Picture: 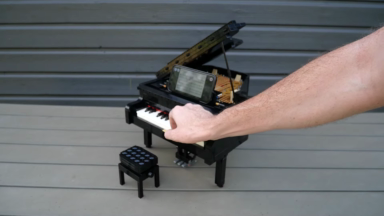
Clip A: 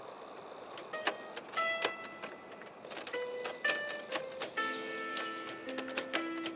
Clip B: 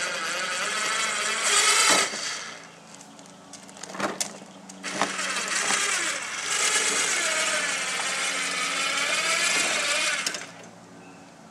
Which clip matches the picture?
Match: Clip A